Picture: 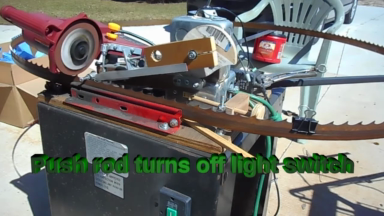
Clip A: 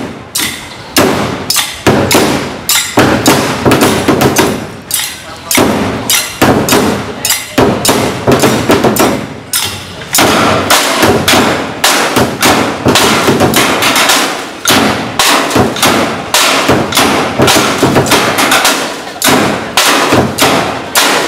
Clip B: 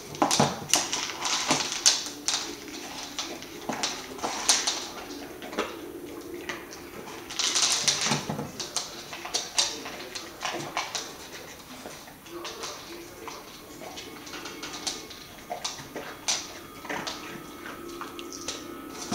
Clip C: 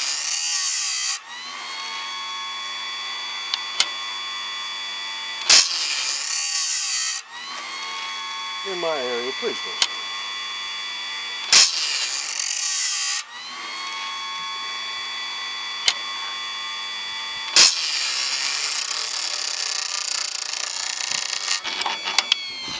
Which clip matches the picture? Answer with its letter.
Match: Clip C